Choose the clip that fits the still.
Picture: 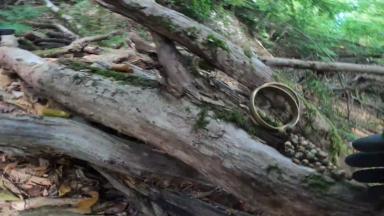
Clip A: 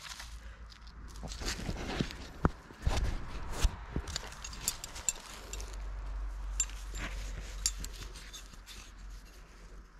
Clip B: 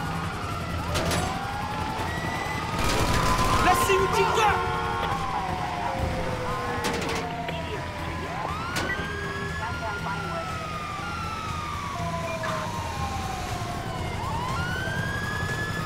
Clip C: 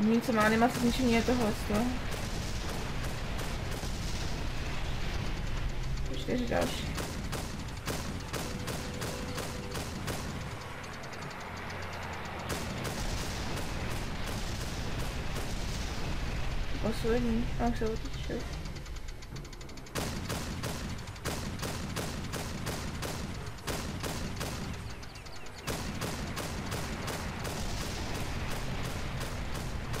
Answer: A